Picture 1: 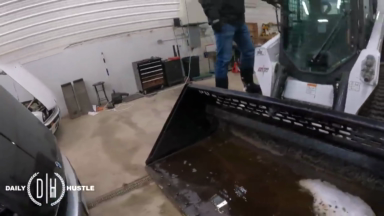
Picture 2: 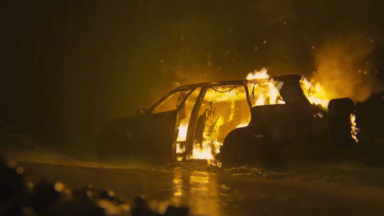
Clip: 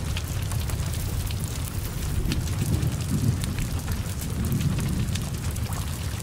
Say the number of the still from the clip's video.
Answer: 2